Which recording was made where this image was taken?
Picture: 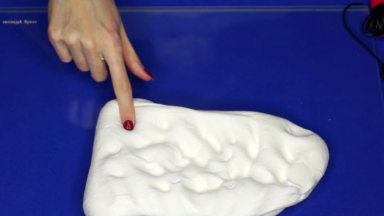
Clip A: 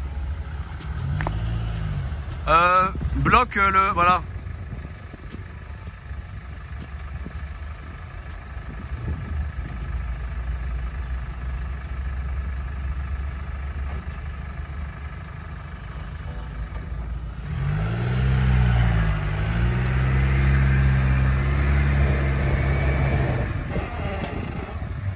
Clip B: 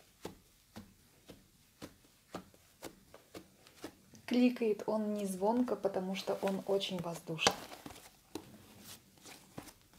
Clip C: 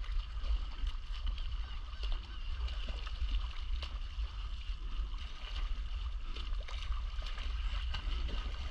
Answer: B